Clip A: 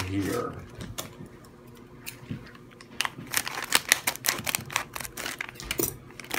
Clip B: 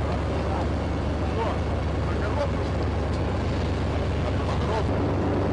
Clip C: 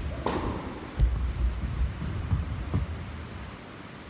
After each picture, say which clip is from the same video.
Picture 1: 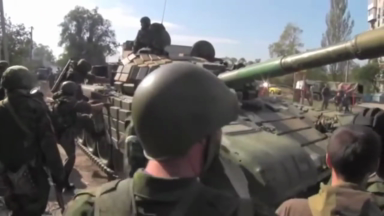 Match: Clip B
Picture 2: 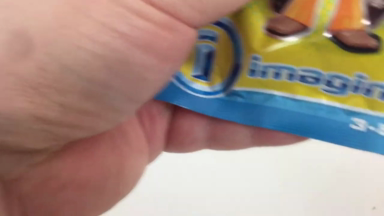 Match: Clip A